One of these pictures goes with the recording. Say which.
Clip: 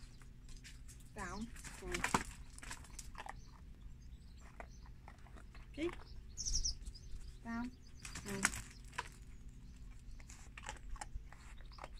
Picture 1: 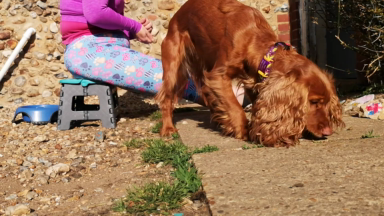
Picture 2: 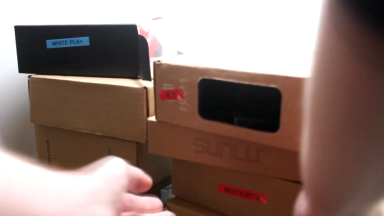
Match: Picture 1